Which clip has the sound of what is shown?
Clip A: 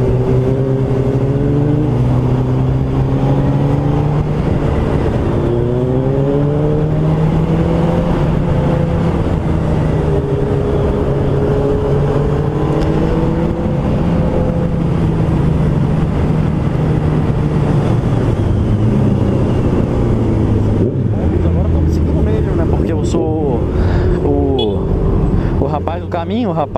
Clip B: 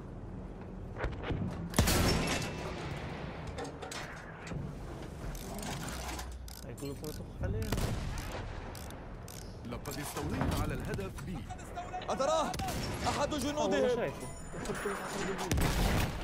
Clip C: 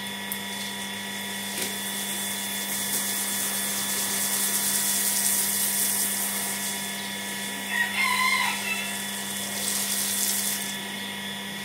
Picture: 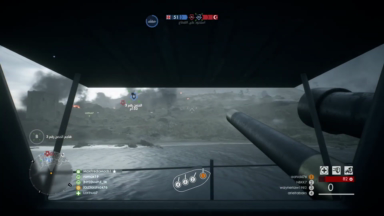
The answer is B